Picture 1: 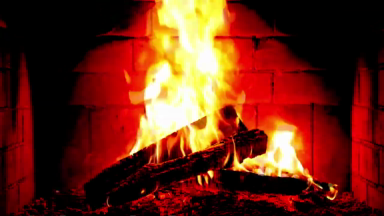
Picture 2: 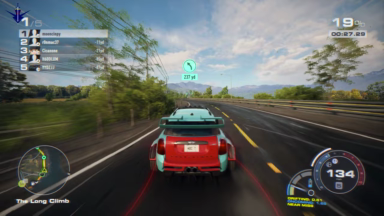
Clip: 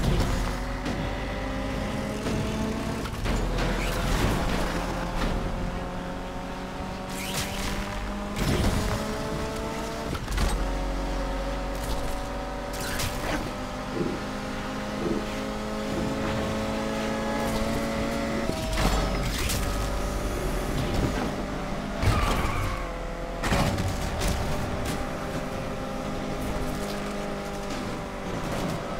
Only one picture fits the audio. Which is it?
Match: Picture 2